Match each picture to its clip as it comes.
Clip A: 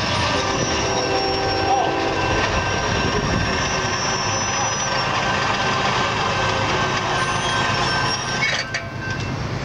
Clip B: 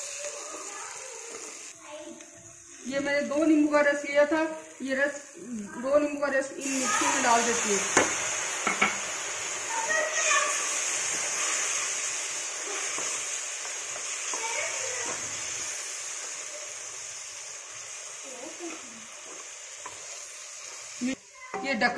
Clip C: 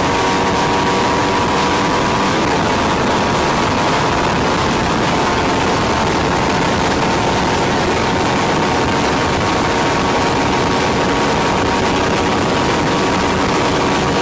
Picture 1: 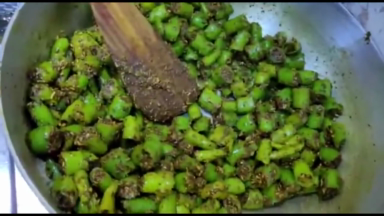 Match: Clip B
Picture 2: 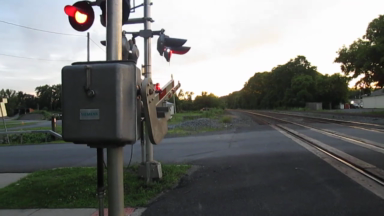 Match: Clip A